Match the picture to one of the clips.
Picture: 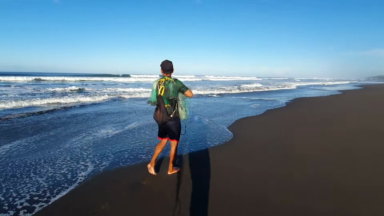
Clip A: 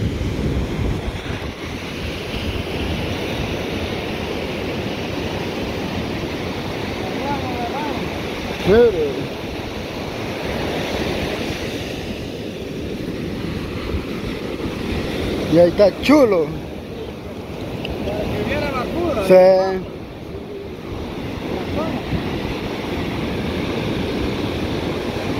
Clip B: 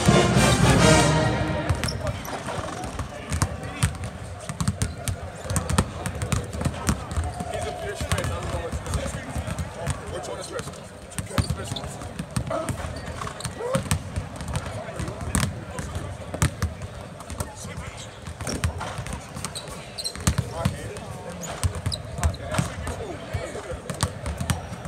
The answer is A